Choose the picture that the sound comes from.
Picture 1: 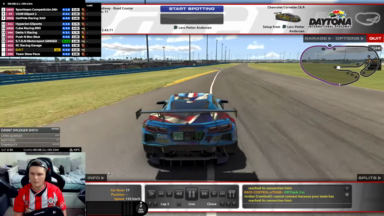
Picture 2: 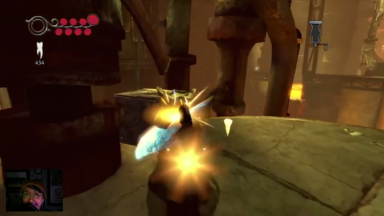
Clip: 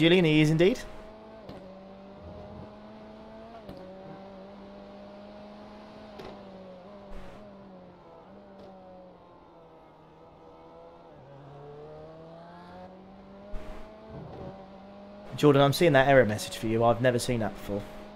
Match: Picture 1